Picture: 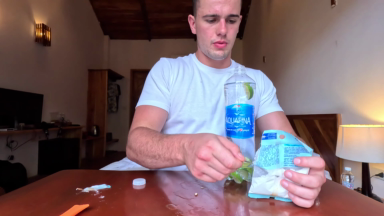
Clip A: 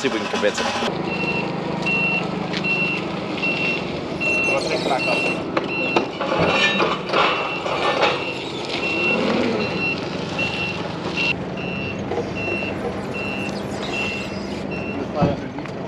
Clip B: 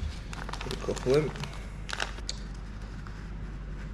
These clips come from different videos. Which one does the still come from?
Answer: B